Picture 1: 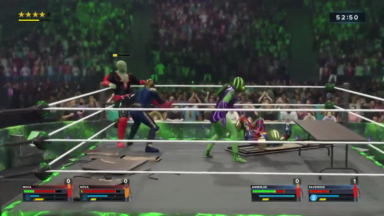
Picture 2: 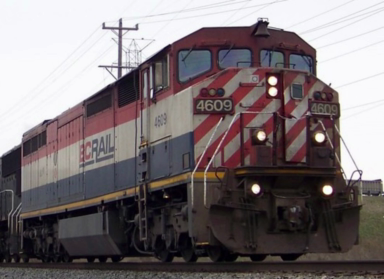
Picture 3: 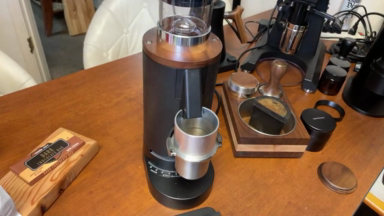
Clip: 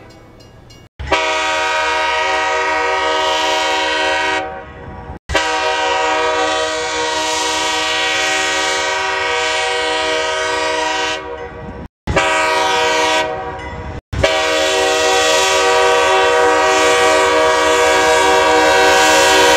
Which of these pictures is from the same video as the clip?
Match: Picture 2